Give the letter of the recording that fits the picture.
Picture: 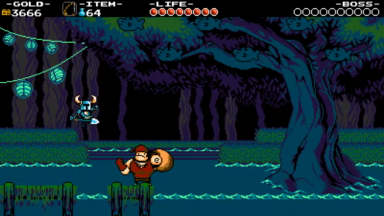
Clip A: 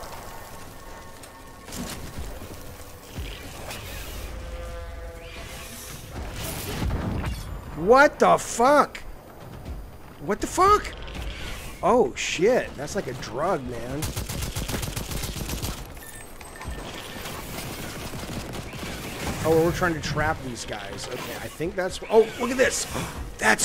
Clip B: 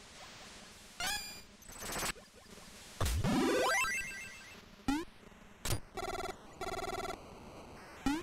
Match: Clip B